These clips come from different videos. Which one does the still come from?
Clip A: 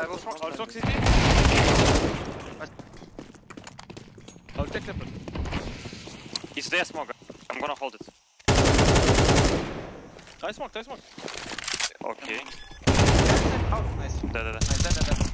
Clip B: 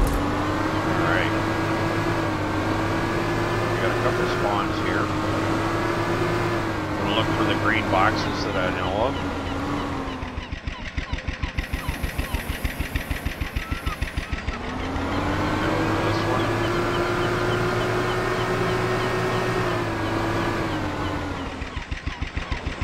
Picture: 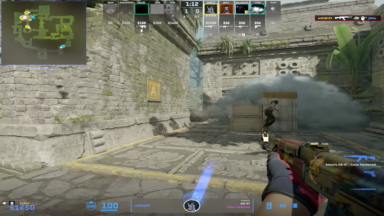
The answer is A